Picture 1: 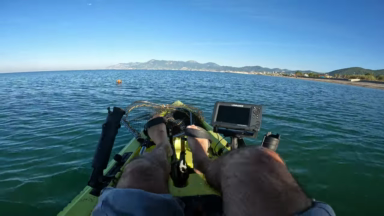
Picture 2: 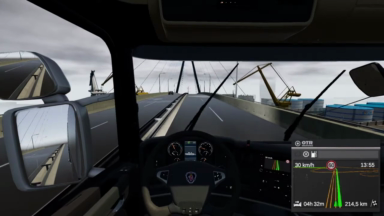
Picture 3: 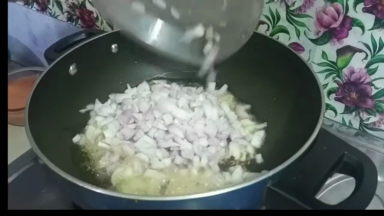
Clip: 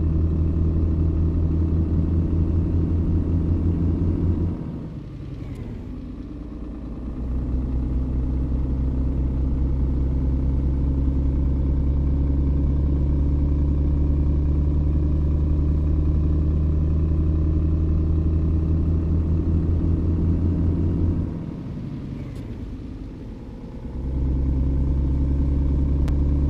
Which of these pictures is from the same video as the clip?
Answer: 2